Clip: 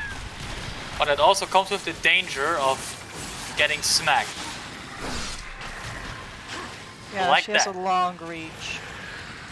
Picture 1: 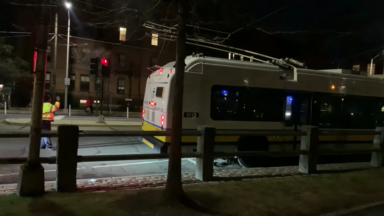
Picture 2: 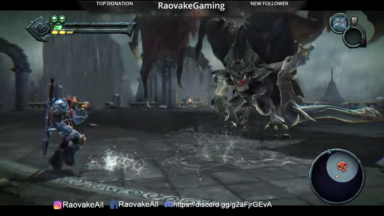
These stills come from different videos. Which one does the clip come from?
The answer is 2